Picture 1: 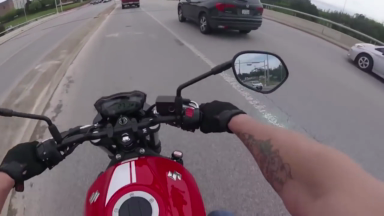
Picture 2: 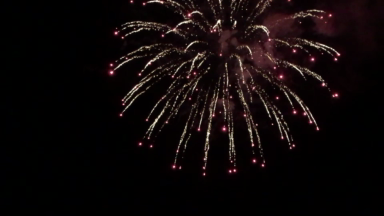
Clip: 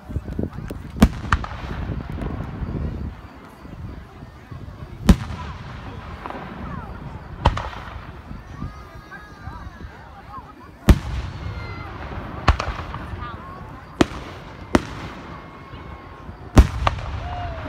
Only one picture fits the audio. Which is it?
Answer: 2